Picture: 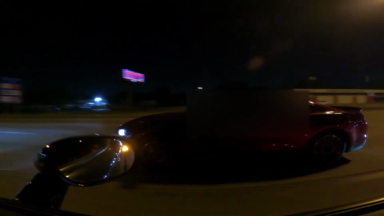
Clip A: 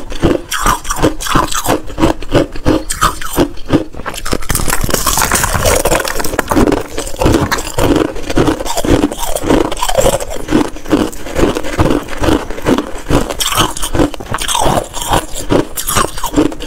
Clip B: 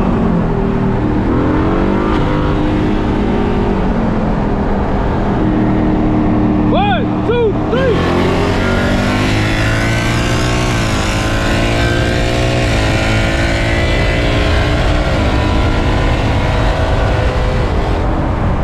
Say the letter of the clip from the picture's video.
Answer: B